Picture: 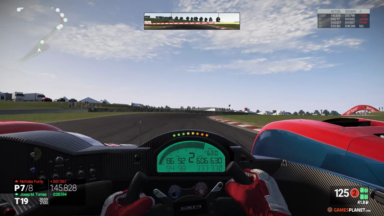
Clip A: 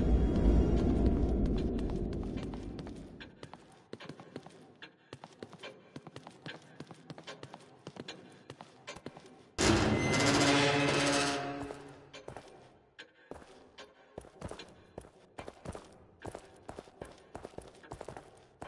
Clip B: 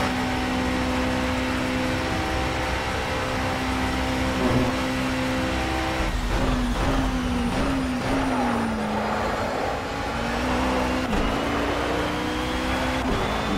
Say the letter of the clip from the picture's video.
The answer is B